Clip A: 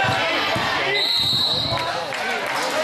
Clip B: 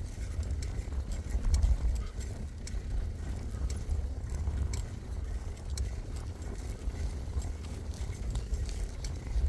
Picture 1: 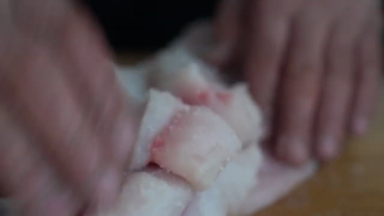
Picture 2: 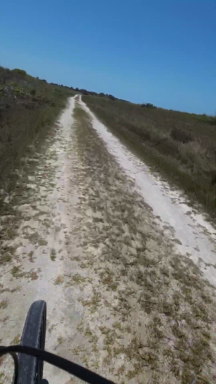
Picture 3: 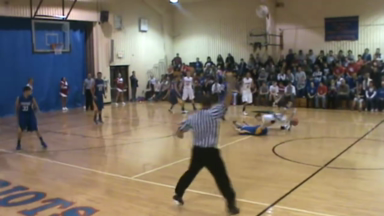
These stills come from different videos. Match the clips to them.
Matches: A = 3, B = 2